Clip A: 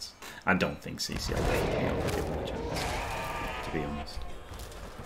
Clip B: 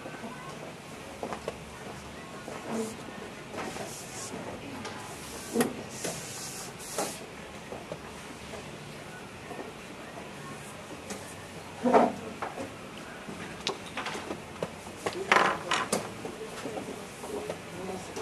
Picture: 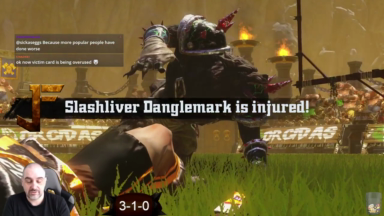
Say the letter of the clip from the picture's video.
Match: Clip A